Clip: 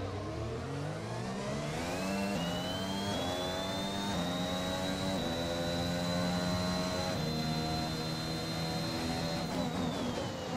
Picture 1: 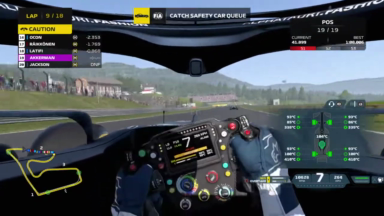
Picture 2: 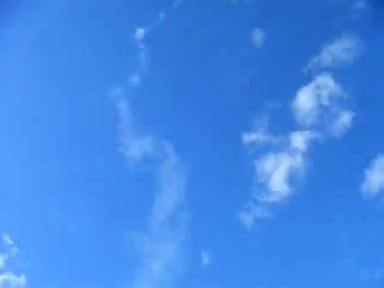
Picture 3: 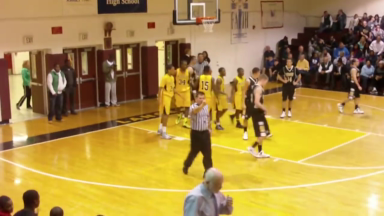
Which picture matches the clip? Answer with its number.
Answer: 1